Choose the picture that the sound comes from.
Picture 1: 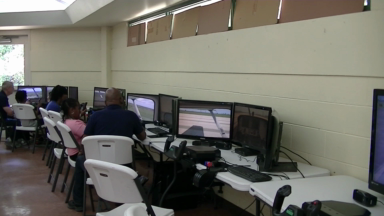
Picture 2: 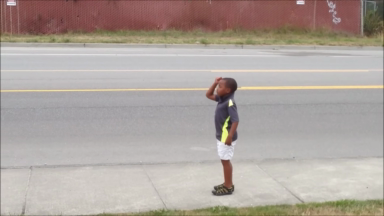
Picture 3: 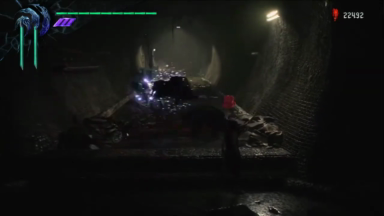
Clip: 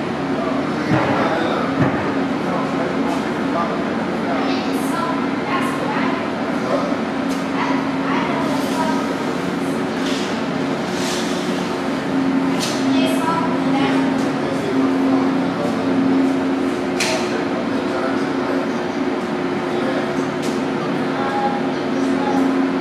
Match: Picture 1